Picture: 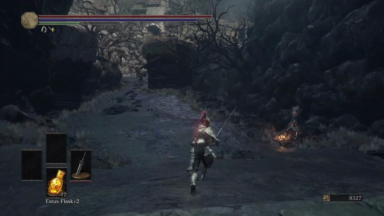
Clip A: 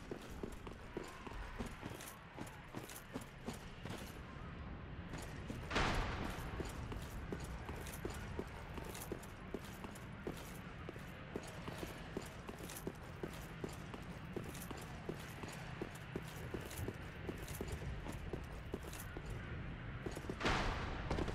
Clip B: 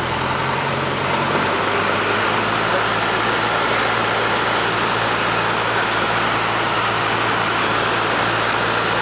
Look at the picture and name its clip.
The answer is A